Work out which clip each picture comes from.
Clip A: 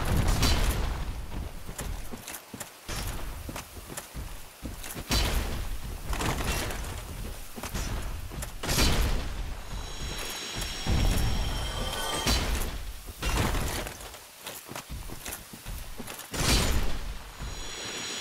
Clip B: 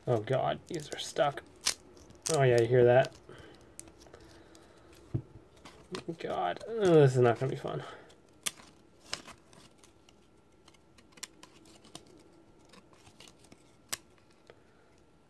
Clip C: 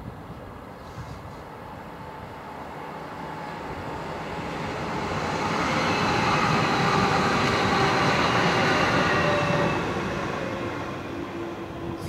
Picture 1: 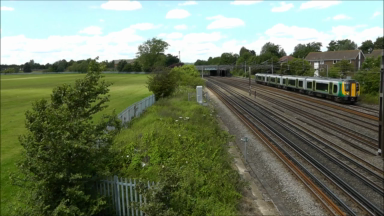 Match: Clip C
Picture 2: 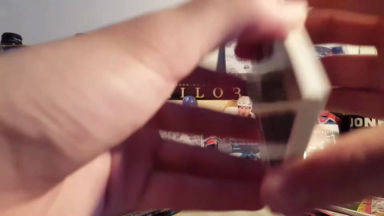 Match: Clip B